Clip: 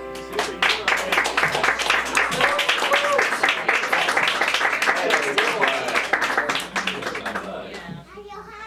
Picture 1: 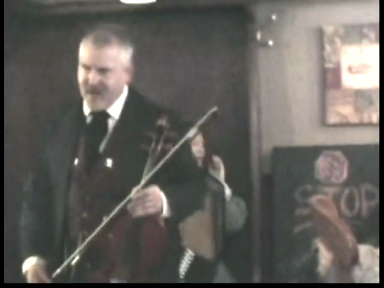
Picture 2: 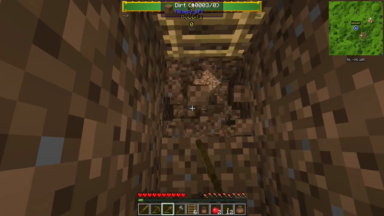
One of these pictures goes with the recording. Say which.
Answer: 1